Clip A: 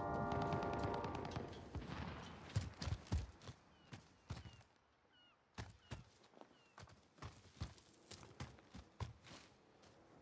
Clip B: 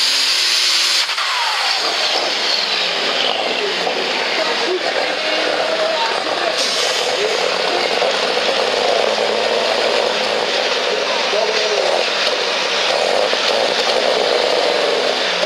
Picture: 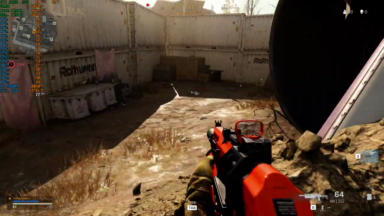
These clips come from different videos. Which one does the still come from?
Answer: A